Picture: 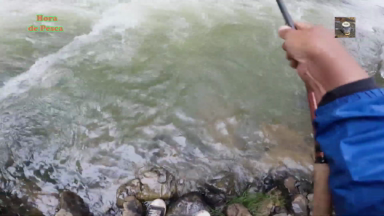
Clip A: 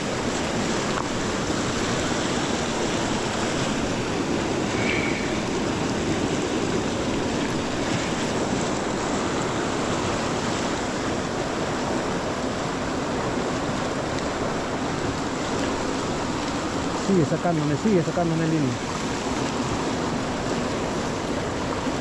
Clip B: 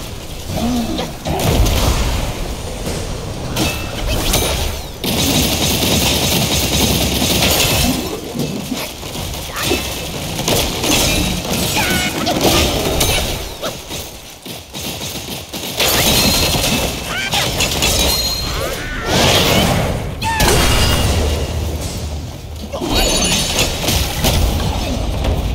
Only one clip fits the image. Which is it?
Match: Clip A